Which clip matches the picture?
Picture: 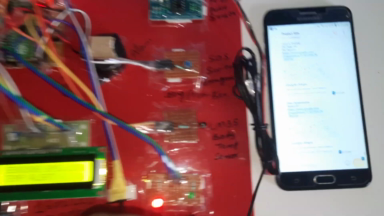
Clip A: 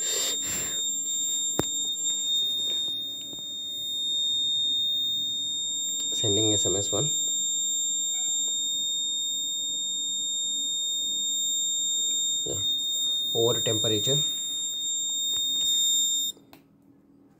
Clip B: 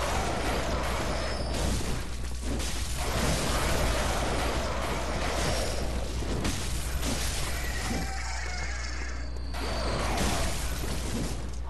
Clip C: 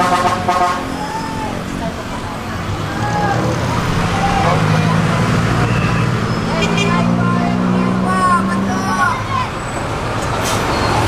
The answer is A